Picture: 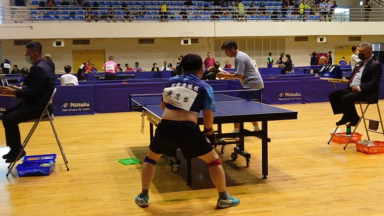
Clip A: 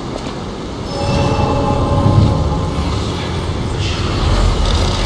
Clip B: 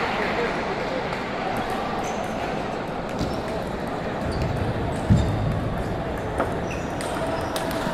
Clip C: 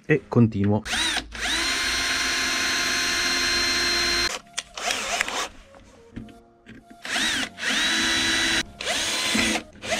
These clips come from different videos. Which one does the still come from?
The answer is B